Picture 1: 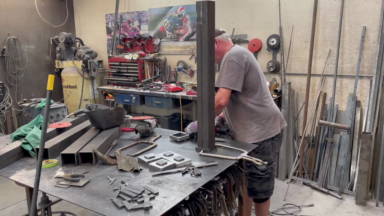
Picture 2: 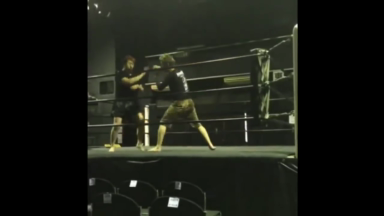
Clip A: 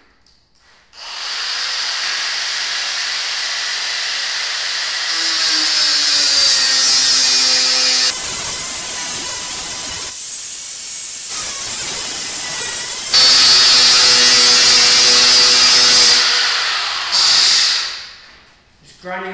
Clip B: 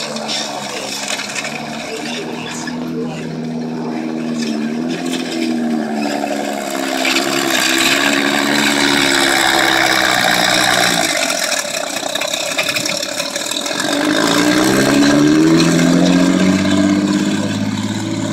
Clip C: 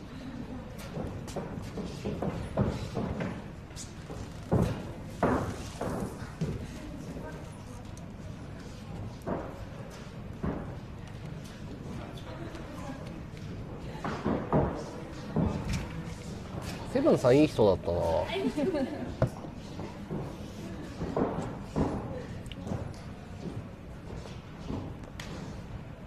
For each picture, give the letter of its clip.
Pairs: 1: A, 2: C